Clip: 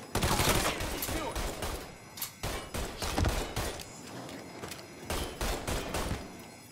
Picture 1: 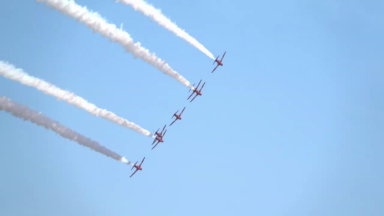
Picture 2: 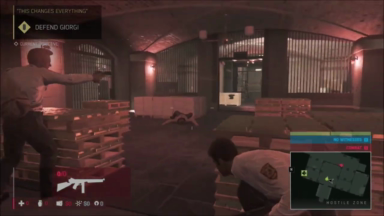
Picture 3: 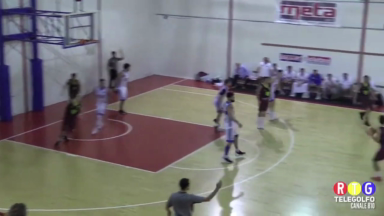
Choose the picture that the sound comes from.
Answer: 2